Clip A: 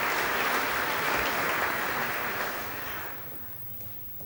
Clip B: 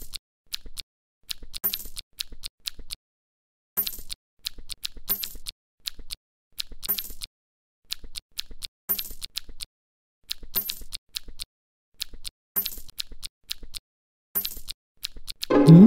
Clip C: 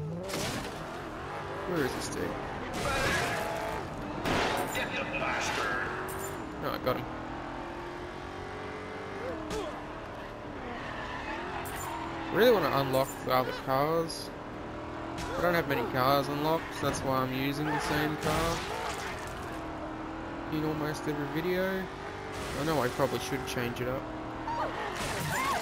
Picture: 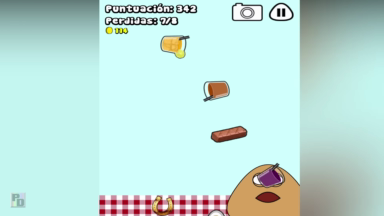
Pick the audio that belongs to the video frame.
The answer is B